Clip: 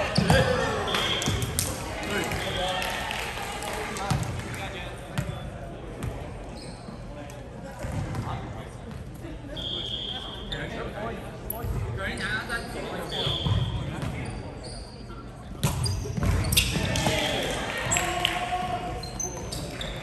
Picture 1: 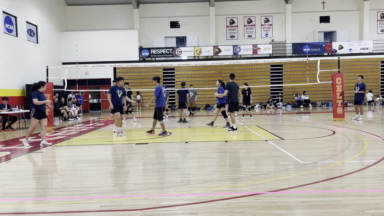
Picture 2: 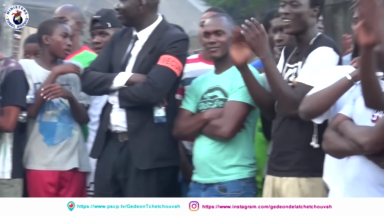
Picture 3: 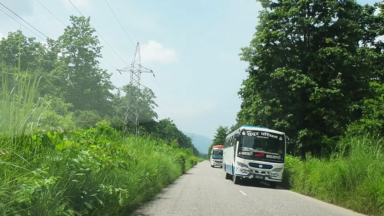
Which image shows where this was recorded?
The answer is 1